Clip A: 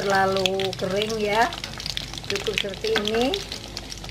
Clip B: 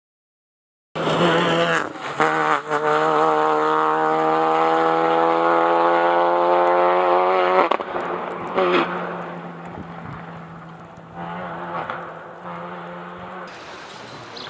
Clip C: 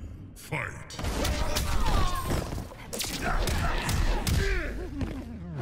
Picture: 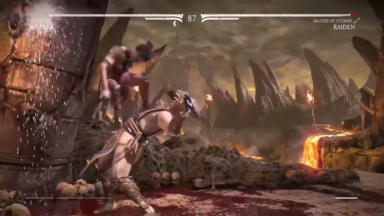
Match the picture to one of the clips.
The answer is C